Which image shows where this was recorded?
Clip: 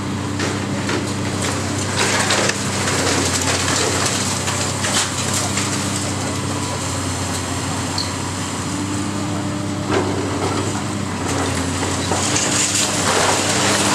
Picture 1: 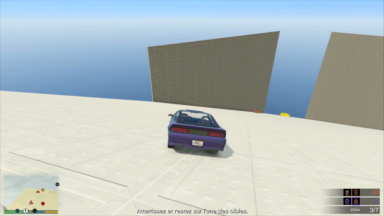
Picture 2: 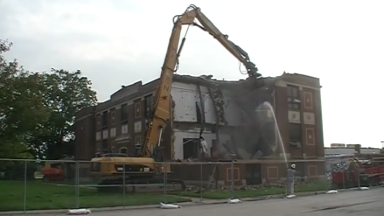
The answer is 2